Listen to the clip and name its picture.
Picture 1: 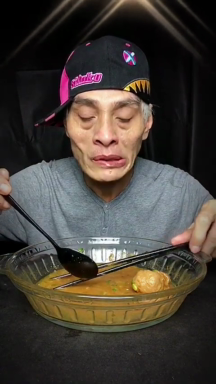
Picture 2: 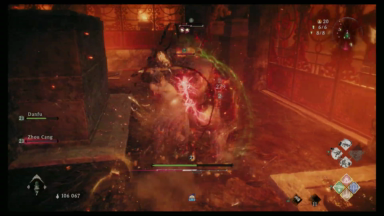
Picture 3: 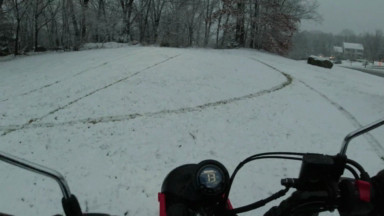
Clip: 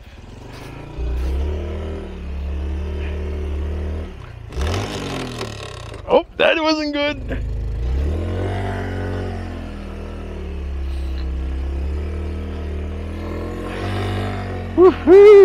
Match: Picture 3